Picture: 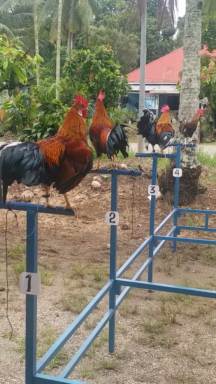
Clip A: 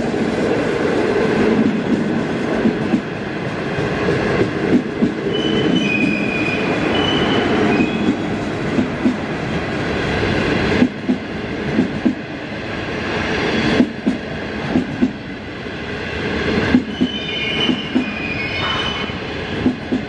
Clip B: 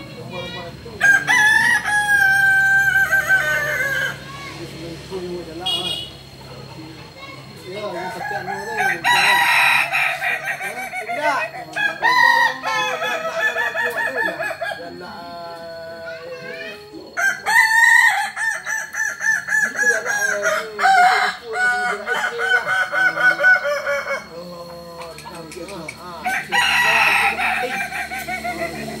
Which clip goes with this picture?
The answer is B